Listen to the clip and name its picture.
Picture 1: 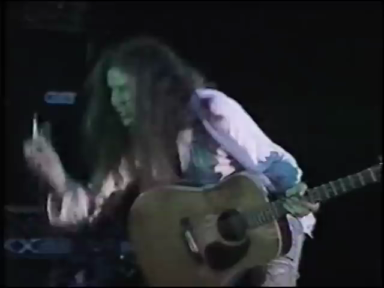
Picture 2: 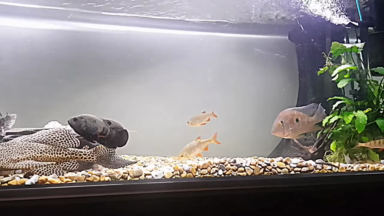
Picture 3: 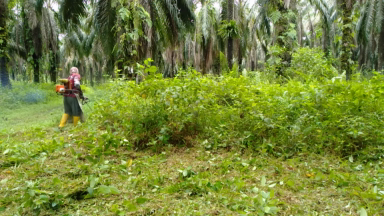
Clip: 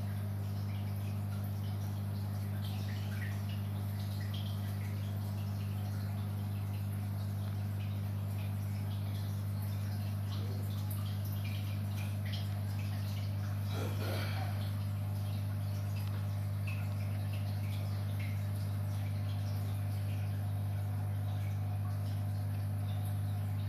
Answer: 2